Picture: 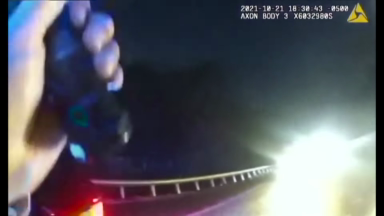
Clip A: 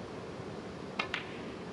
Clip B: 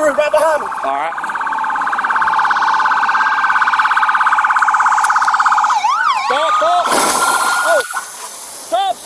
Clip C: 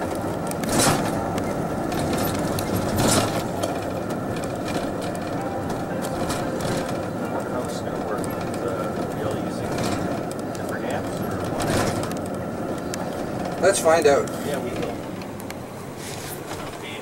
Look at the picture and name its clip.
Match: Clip B